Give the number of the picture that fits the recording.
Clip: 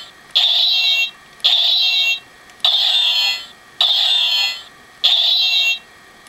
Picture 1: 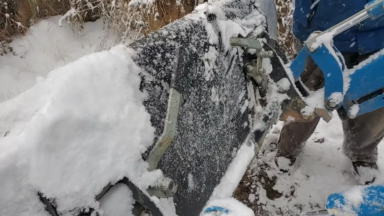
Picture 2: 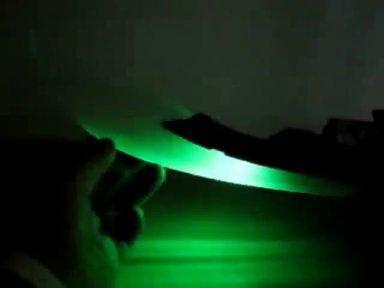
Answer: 2